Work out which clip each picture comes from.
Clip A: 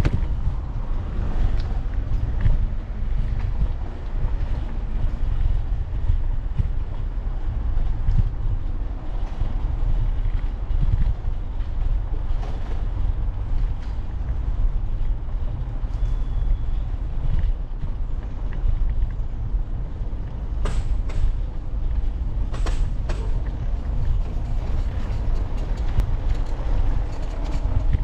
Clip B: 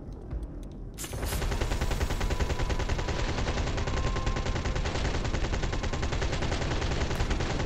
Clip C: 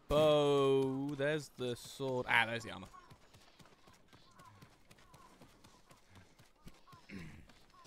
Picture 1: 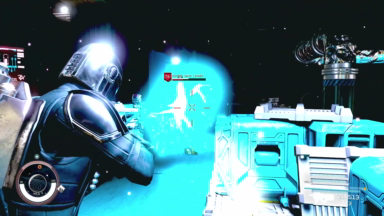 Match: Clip B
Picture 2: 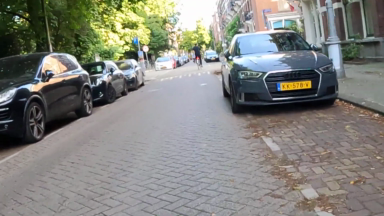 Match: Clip A